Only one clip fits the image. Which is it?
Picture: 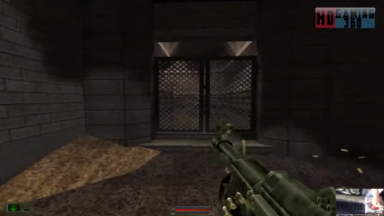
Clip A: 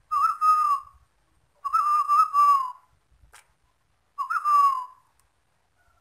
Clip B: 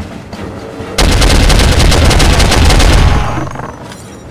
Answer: B